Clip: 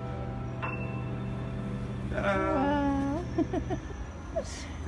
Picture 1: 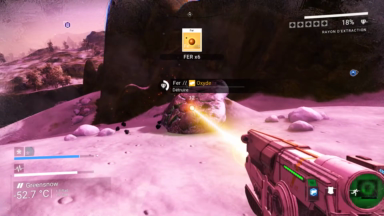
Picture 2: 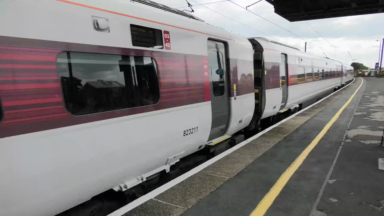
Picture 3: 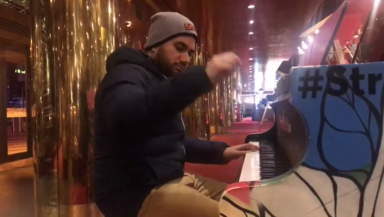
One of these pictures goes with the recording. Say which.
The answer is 3